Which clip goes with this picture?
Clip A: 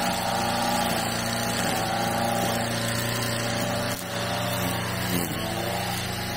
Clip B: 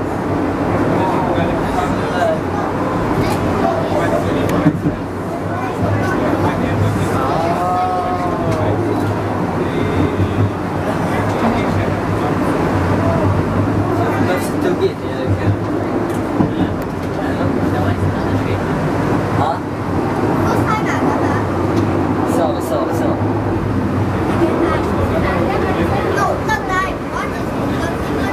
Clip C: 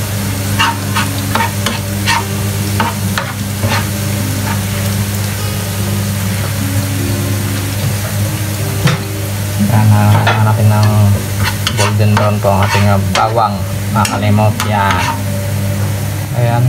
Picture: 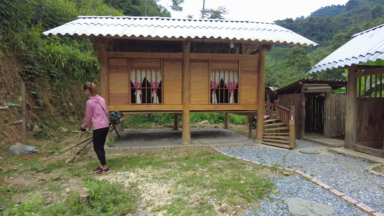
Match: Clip A